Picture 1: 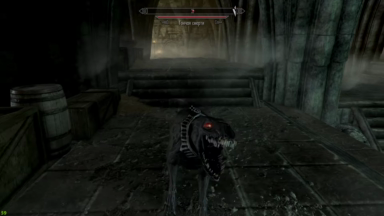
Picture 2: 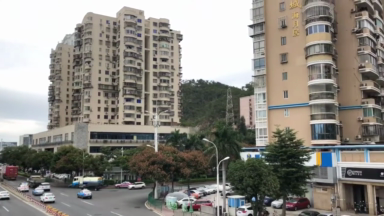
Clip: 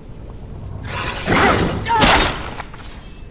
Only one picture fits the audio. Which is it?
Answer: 1